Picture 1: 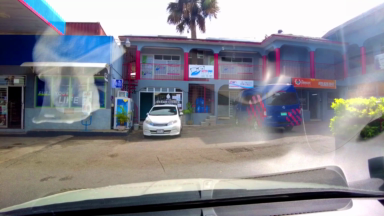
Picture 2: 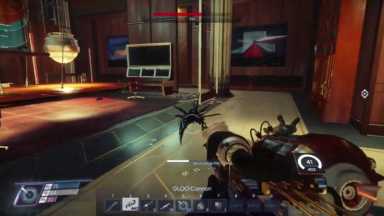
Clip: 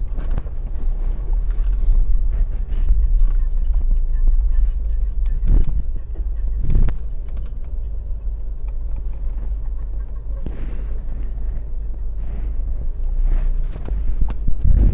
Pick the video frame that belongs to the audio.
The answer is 1